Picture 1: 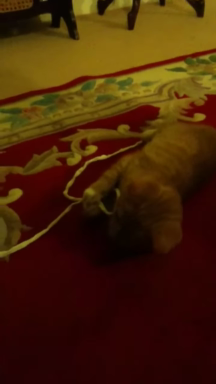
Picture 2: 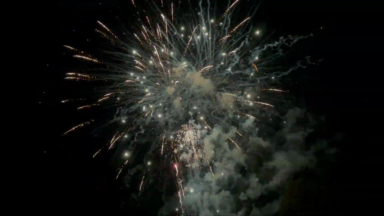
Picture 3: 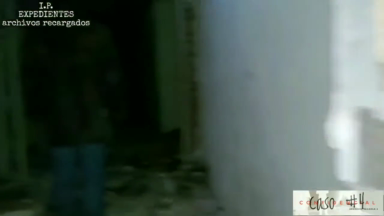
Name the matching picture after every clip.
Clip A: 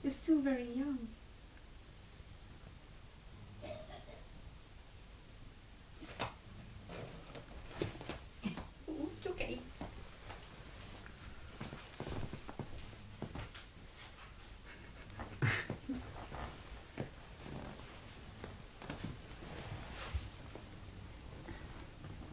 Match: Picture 1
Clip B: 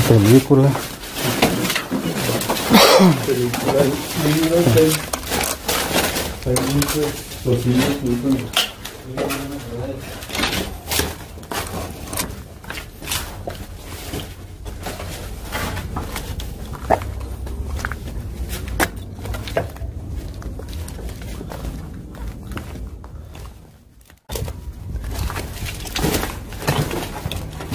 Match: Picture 3